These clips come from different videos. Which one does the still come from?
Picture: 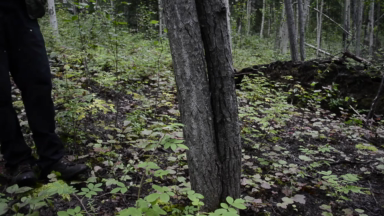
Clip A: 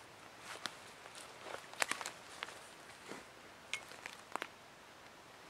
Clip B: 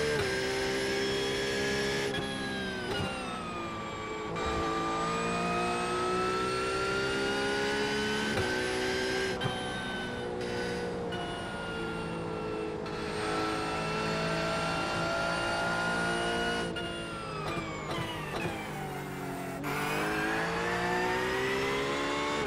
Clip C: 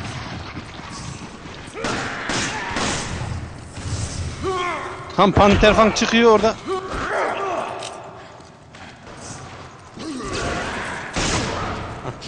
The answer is A